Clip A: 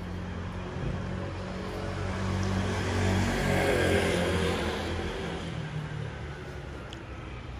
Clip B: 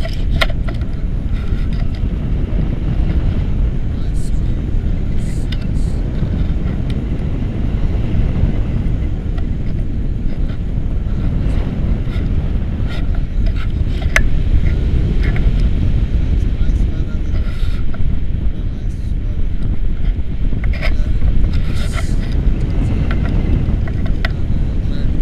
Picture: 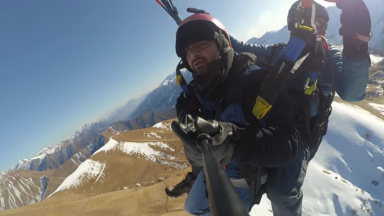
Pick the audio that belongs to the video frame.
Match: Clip B